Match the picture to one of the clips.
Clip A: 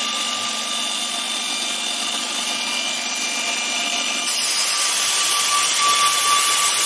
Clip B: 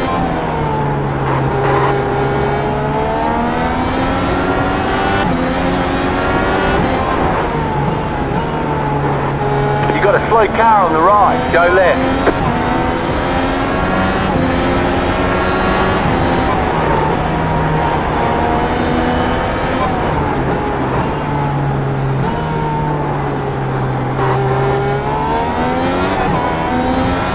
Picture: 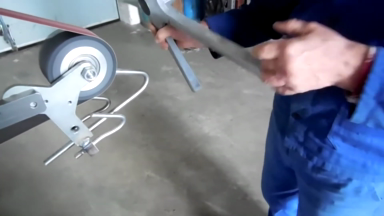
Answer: A